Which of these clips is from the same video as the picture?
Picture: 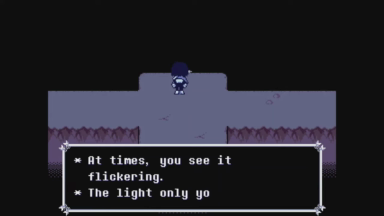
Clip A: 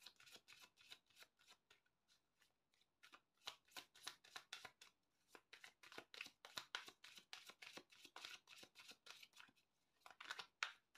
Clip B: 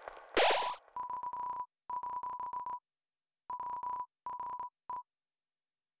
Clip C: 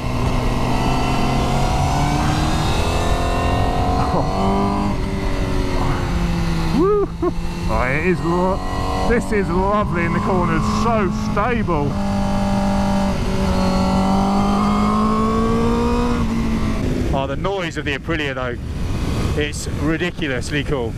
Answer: B